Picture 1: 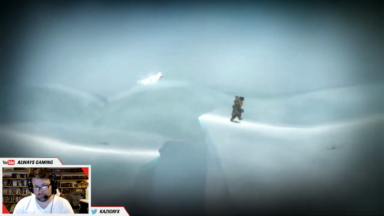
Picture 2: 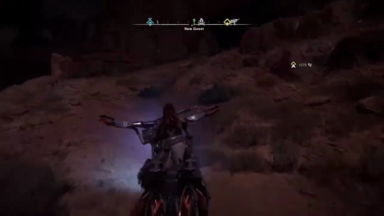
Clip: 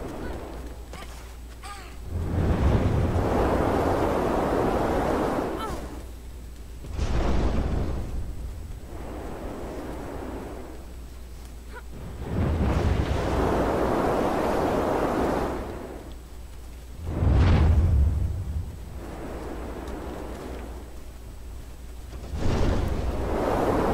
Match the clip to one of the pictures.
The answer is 1